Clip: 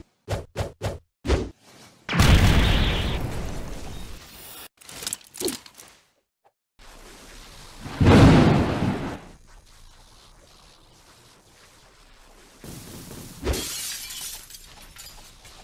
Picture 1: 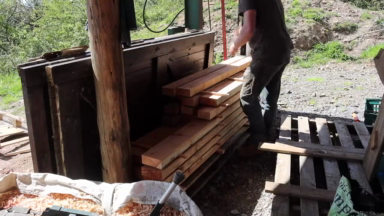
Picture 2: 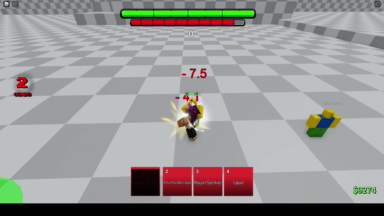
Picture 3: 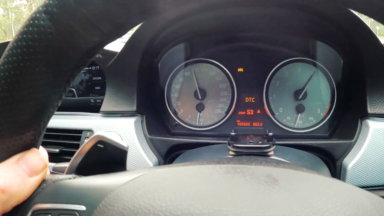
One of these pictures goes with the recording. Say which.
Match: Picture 2